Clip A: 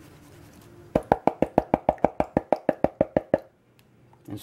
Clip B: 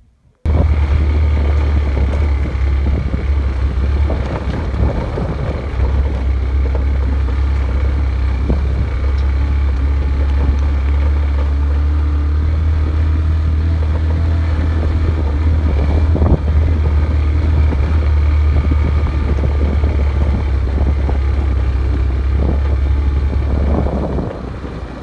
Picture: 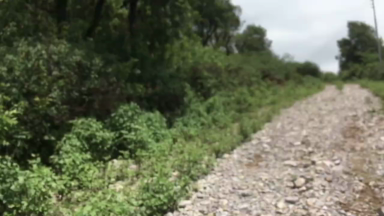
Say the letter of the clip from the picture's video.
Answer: B